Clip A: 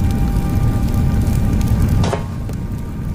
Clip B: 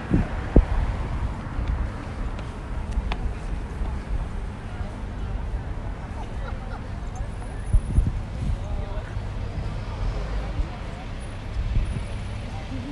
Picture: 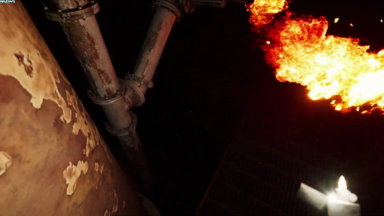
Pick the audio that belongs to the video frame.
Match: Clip A